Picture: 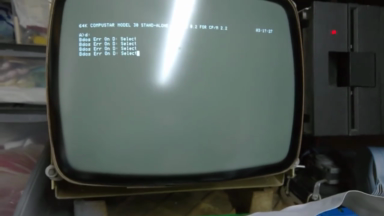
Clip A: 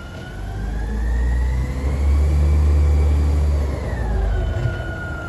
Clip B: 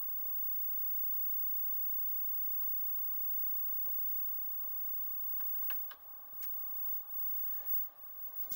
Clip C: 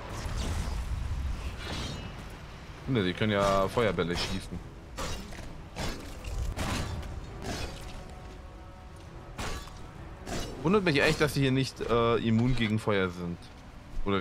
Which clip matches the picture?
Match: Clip B